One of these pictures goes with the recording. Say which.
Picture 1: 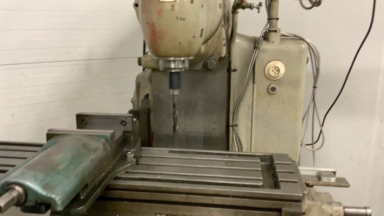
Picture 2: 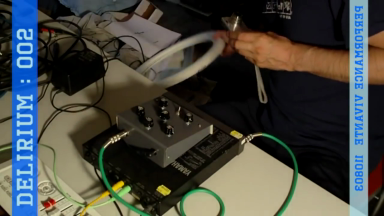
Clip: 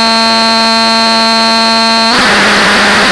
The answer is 2